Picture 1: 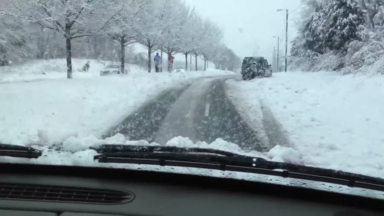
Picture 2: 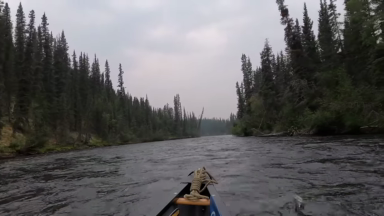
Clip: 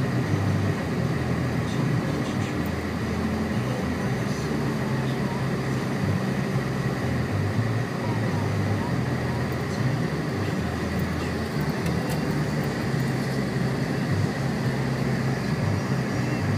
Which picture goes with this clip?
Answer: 1